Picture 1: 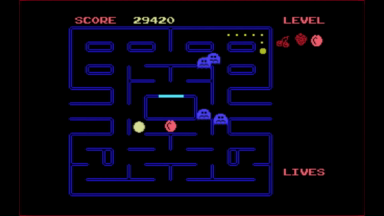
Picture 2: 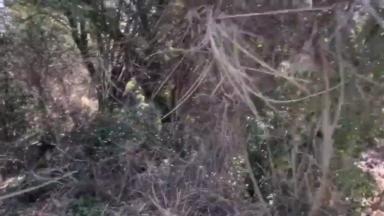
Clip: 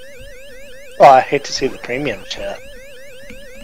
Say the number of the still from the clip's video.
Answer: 1